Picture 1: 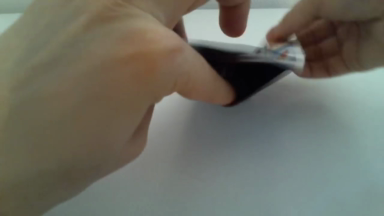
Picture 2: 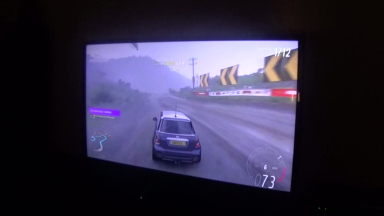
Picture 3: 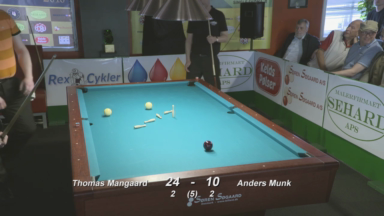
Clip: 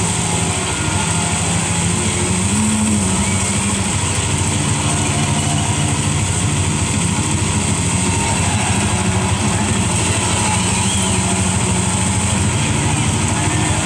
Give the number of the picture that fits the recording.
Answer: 2